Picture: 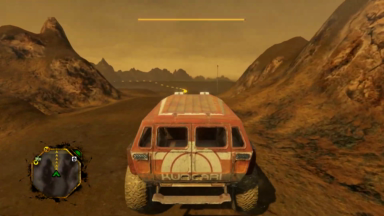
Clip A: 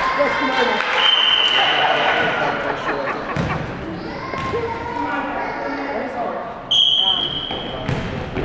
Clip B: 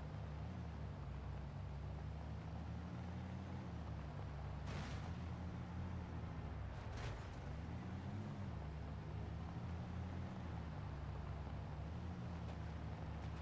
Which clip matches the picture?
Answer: B